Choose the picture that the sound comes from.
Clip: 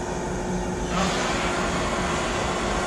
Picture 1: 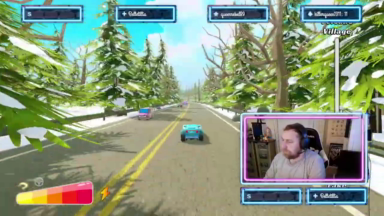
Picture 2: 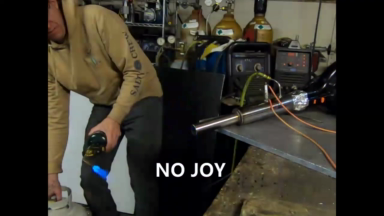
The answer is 2